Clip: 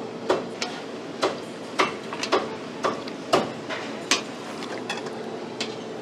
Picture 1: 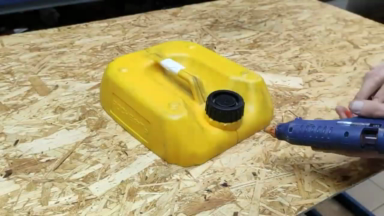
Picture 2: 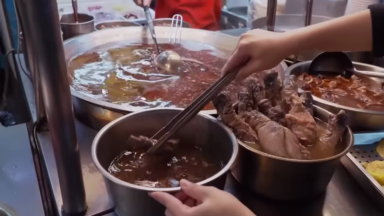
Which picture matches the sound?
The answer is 2